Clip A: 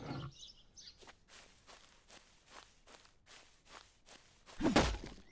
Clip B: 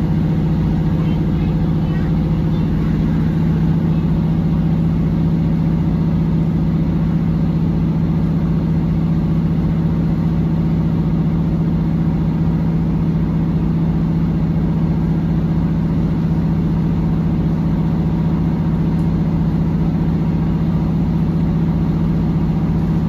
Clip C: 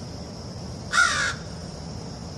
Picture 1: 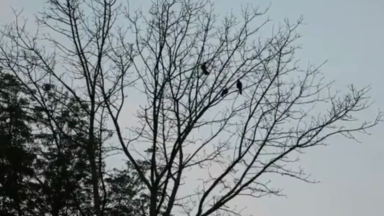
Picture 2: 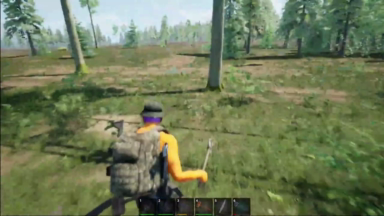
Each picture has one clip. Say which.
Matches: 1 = C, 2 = A